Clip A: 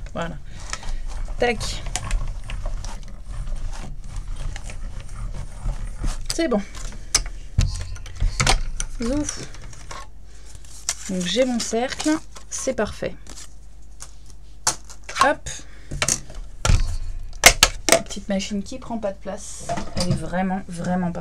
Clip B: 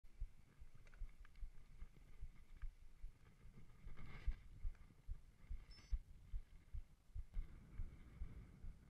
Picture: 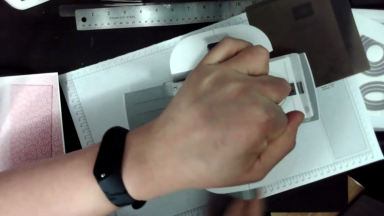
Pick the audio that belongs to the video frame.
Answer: A